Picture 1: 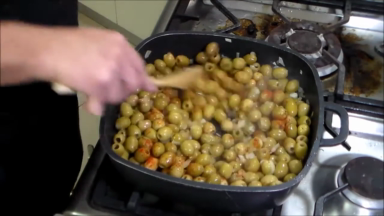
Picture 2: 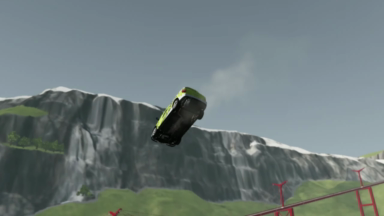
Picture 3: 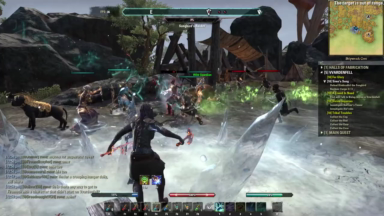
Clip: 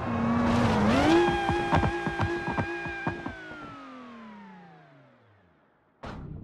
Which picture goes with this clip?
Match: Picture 2